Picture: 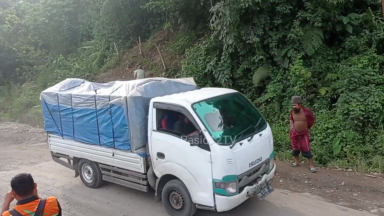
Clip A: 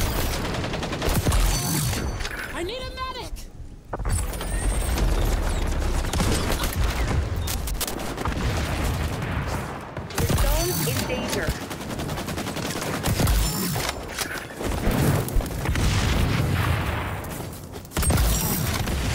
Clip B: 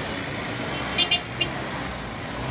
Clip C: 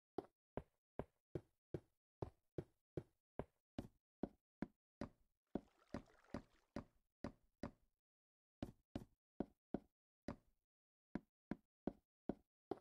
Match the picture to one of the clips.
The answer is B